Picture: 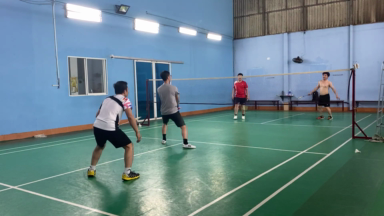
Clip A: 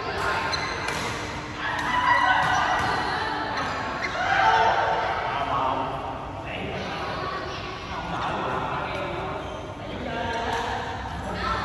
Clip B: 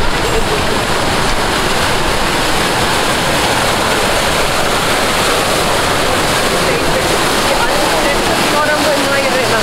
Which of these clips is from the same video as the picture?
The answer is A